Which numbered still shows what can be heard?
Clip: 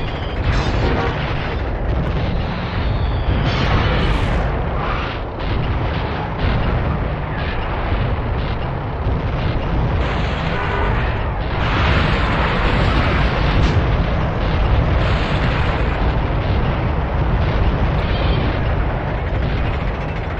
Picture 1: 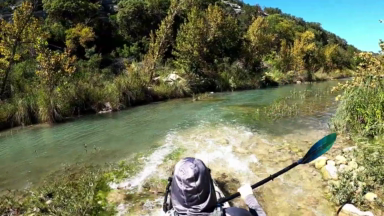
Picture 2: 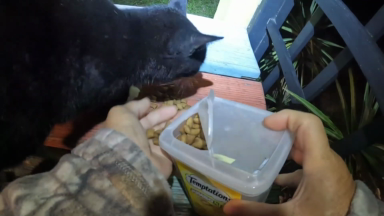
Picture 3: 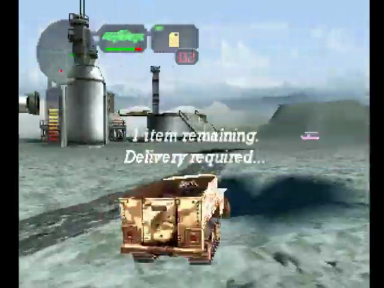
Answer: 3